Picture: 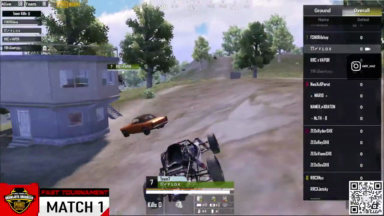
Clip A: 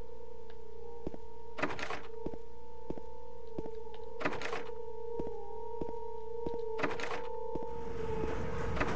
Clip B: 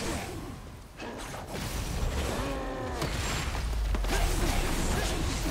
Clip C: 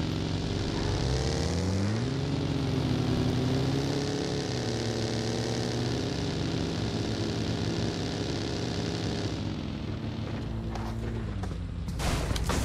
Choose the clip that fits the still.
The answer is C